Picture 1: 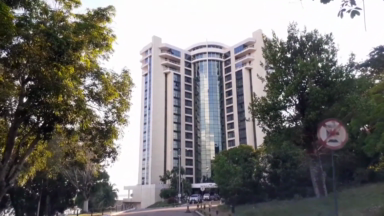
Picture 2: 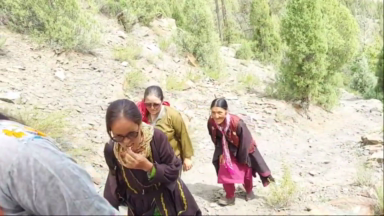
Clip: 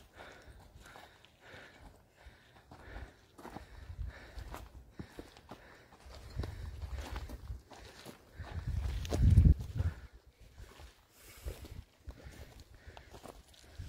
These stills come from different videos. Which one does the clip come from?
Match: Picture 2